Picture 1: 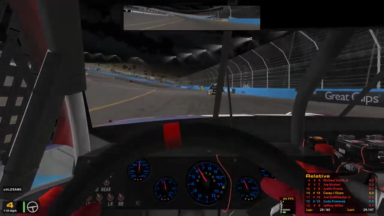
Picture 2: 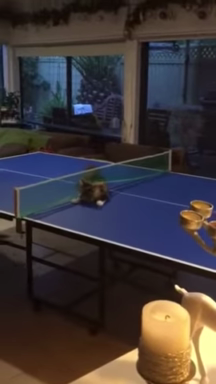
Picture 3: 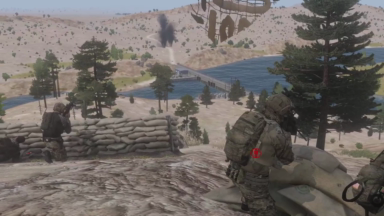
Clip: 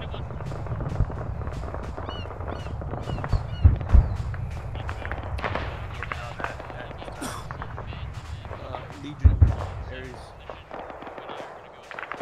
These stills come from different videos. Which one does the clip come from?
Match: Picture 3